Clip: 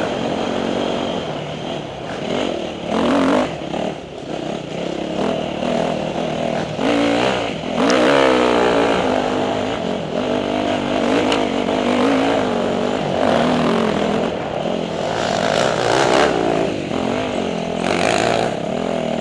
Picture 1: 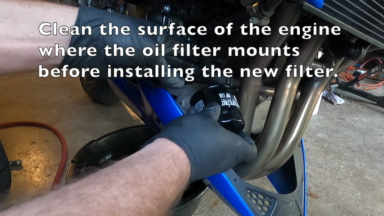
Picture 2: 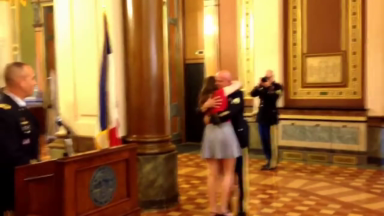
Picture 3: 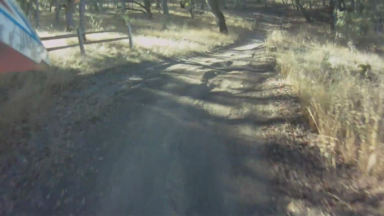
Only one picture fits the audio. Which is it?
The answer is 3